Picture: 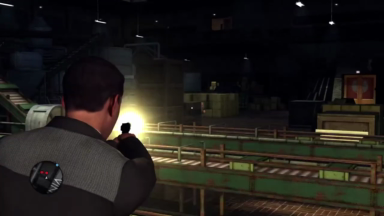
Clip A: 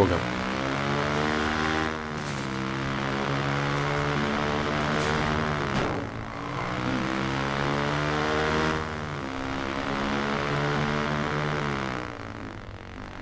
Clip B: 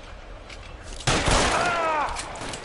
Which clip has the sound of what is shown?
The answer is B